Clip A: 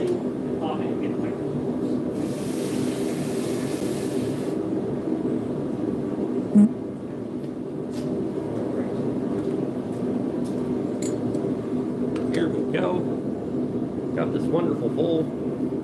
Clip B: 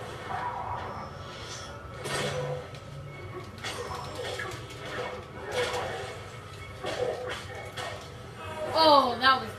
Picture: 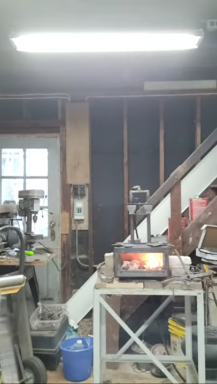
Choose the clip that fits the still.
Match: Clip A